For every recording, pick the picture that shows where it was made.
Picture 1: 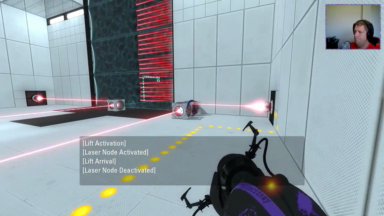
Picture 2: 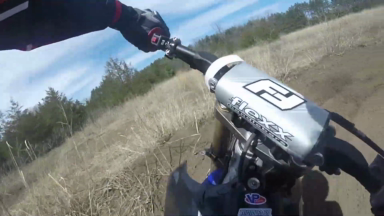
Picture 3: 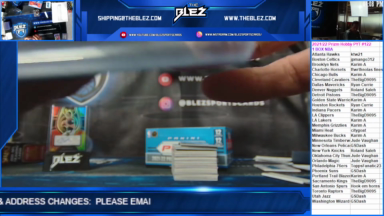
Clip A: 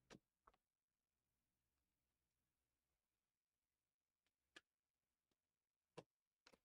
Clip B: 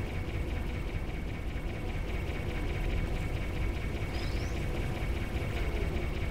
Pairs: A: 3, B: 1